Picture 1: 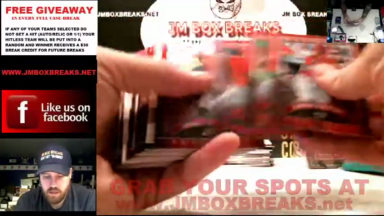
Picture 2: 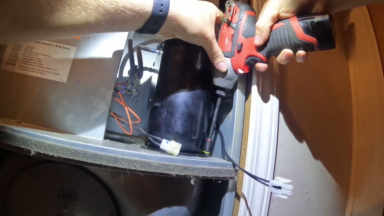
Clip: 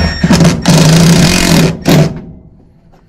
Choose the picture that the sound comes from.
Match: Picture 2